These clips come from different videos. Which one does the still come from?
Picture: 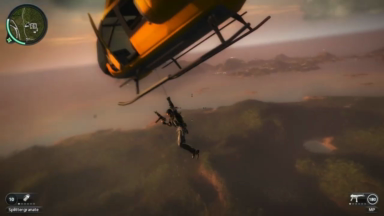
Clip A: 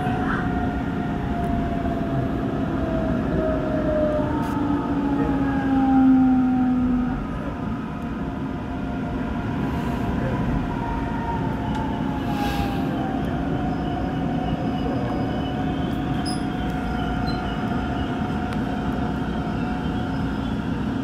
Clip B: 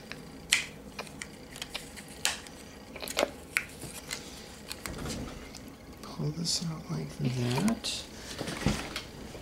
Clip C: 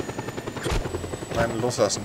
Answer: C